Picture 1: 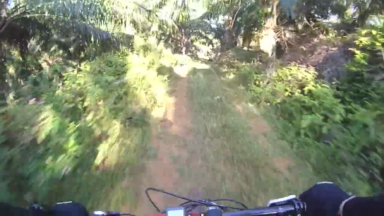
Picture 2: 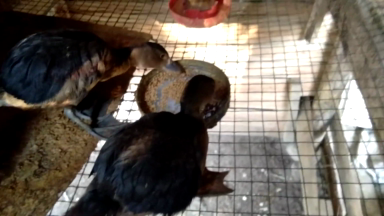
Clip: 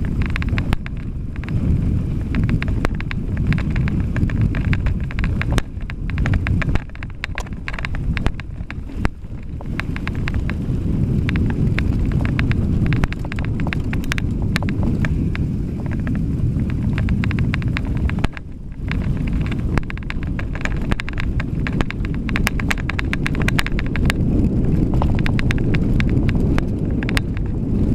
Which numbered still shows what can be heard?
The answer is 1